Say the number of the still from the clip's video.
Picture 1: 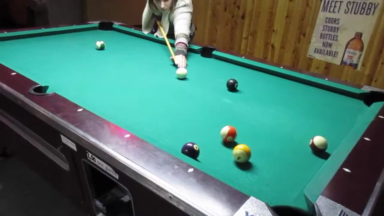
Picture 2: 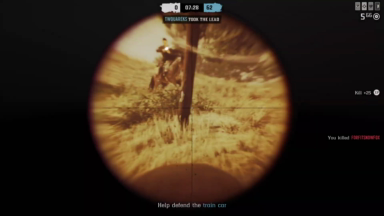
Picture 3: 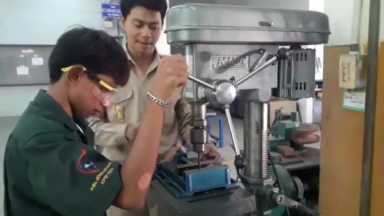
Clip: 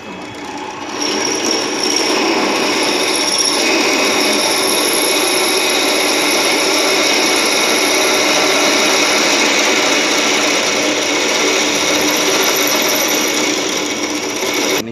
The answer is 3